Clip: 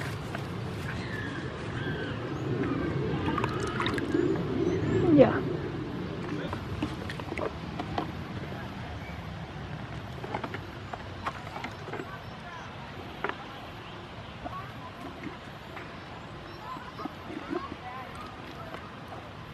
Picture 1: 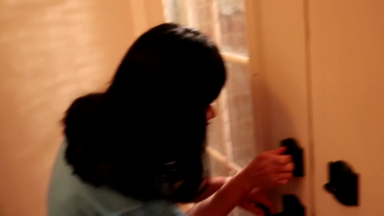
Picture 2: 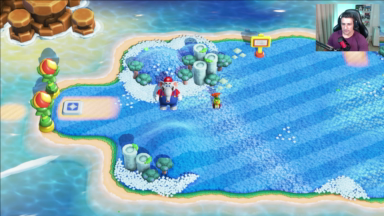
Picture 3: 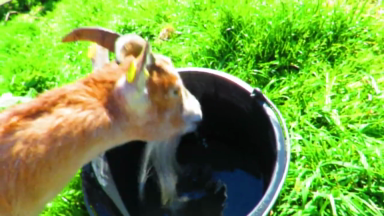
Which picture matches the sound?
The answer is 3